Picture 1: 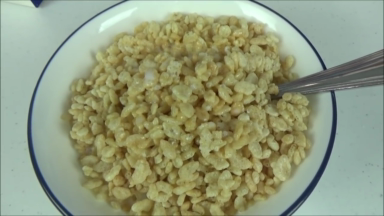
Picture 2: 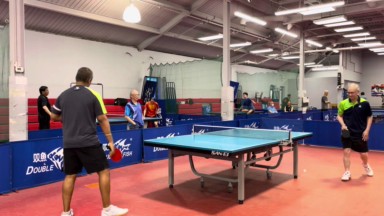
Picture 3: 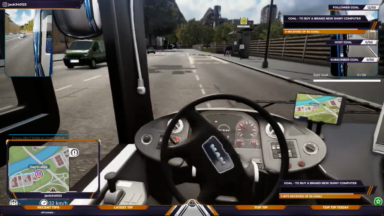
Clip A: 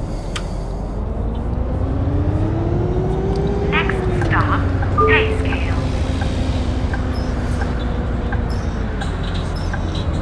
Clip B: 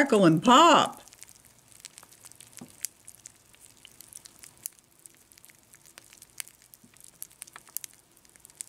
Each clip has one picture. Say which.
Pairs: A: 3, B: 1